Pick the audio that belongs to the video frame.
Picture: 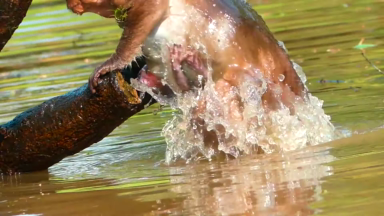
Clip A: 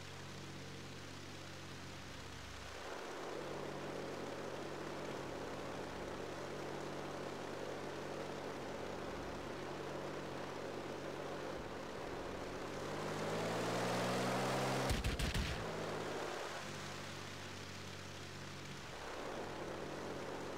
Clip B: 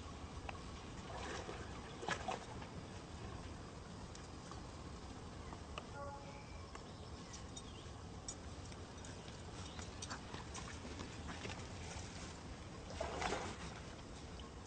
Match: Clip B